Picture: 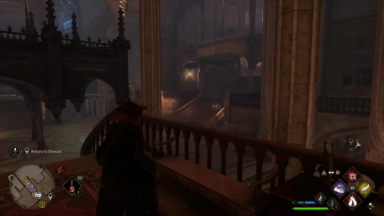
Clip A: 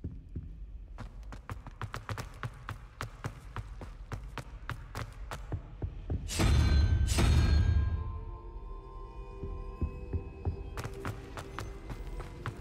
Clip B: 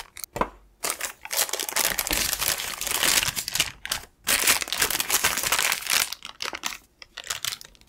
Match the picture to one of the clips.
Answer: A